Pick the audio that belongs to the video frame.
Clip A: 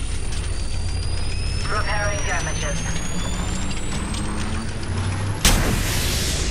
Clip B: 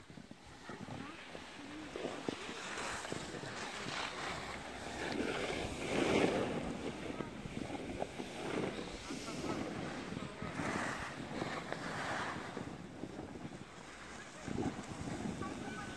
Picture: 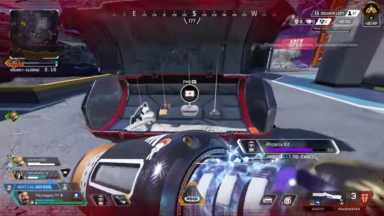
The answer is A